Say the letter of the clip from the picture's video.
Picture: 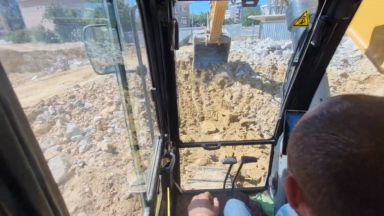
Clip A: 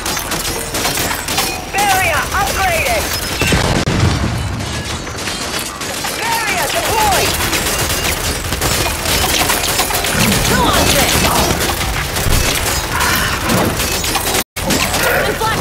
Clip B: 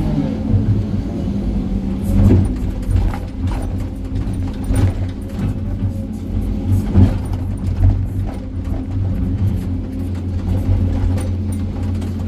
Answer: B